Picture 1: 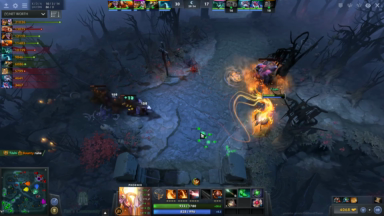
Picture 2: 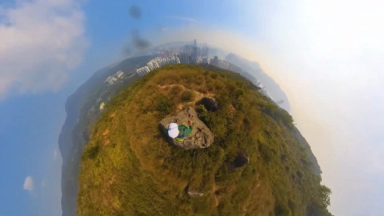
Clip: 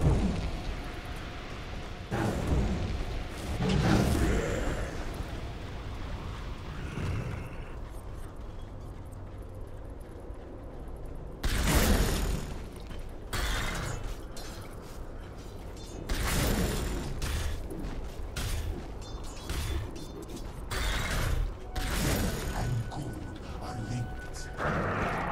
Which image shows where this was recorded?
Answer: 1